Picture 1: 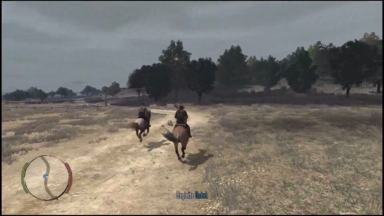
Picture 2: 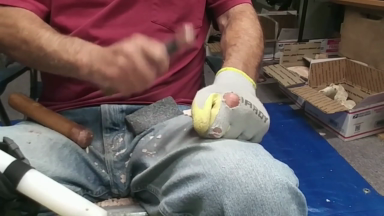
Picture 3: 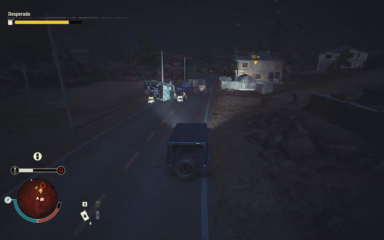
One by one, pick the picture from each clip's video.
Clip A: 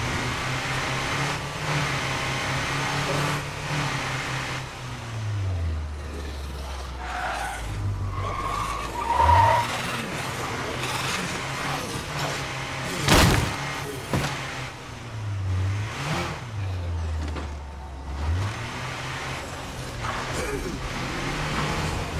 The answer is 3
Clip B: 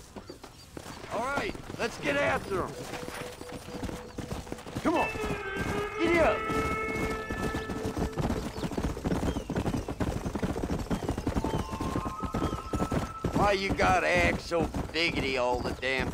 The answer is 1